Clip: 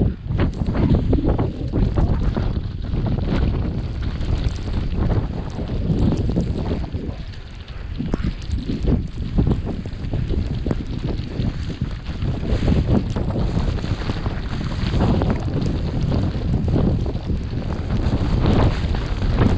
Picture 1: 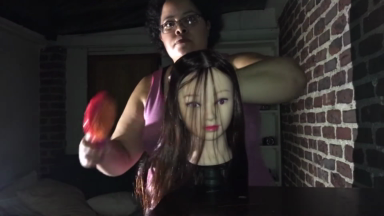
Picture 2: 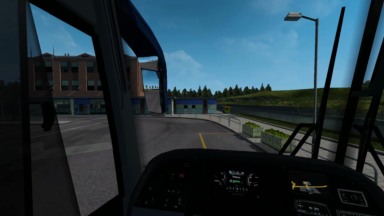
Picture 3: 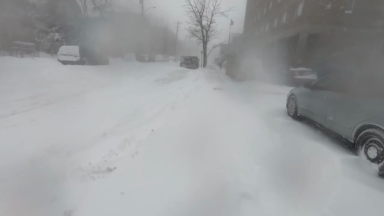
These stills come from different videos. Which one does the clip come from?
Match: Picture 3